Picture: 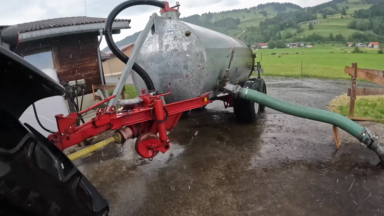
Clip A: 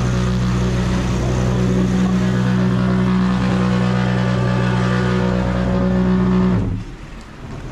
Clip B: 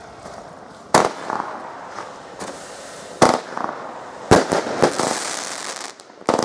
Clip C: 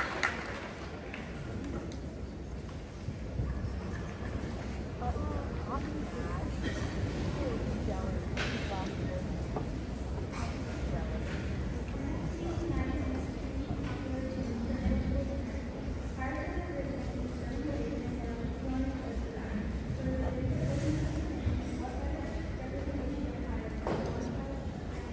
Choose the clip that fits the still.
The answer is A